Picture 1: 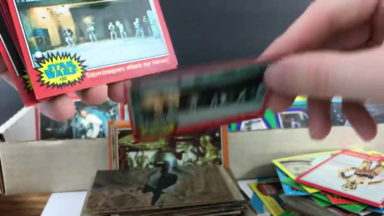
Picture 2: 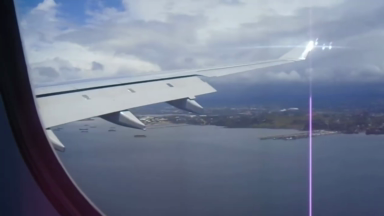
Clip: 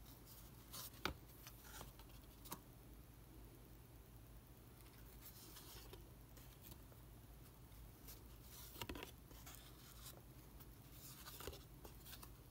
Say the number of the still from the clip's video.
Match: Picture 1